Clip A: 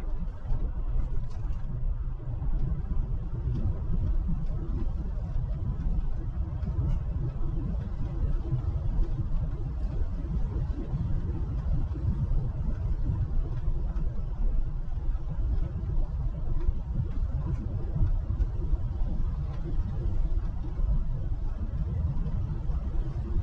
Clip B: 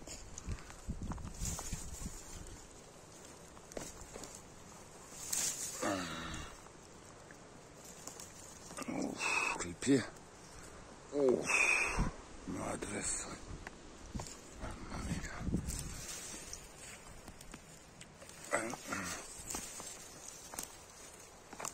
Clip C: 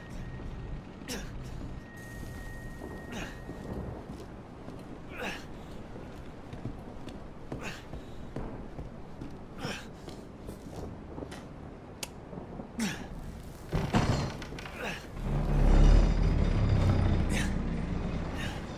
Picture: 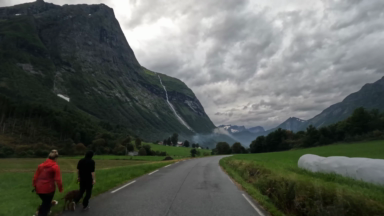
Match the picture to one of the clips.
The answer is A